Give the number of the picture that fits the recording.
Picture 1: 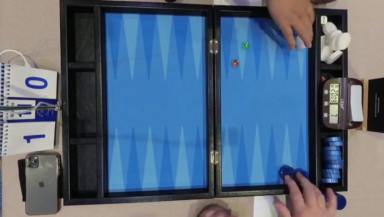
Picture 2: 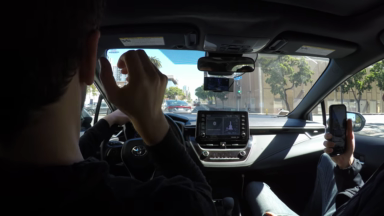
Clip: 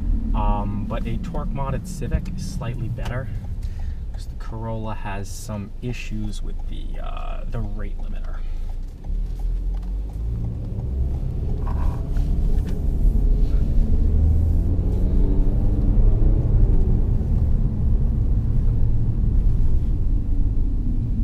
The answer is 2